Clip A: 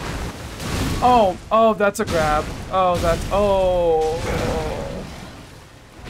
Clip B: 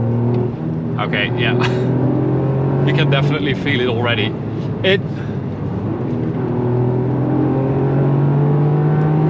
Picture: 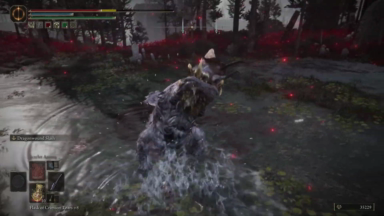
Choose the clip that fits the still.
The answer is A